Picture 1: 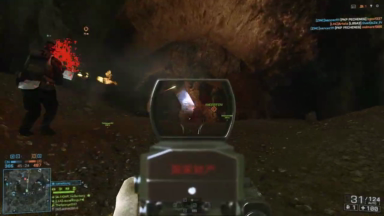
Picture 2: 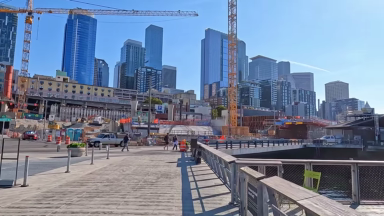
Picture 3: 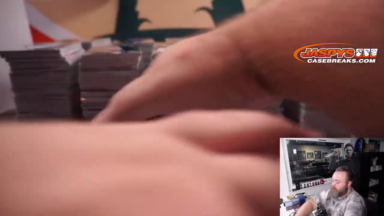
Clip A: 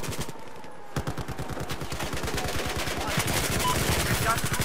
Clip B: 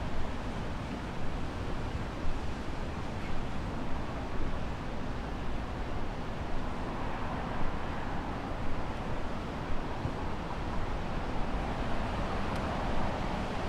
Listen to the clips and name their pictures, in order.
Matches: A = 1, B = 2